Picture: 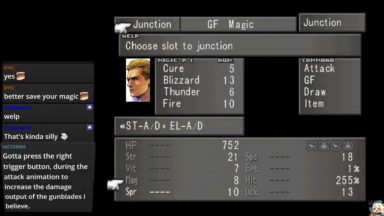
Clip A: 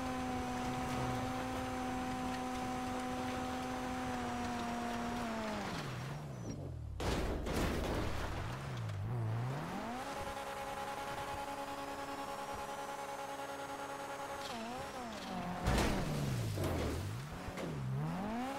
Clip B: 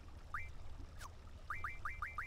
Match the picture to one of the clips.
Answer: B